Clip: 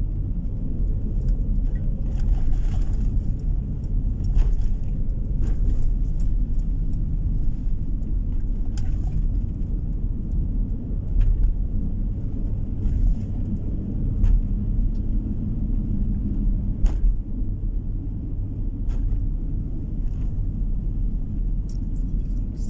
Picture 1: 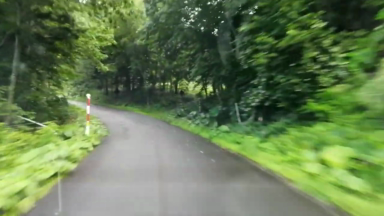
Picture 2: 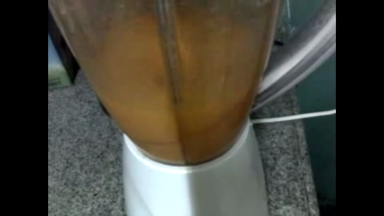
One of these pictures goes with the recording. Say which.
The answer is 1